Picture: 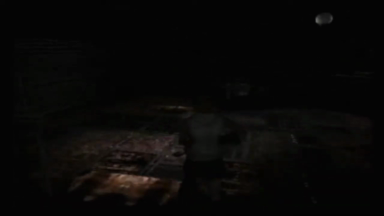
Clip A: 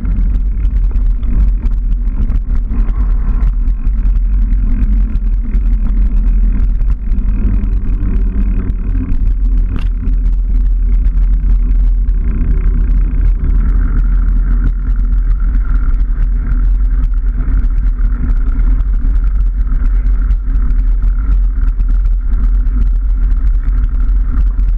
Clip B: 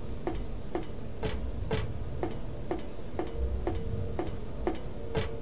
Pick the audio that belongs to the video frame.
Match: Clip B